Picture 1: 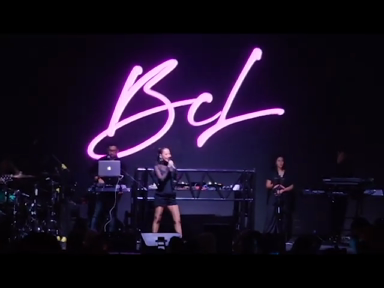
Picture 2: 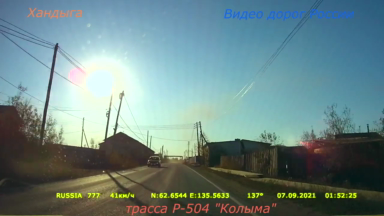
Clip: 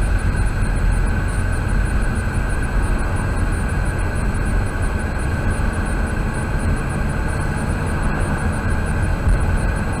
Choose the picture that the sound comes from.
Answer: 2